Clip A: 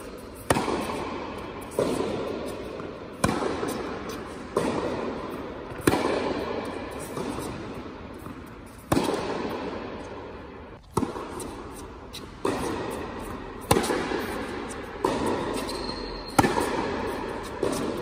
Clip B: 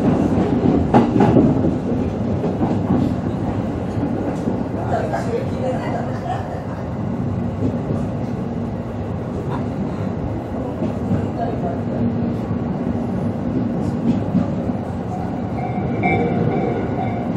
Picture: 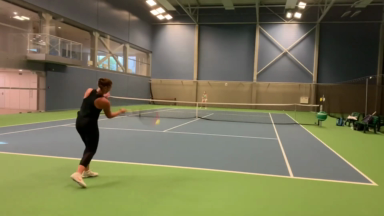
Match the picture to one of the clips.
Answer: A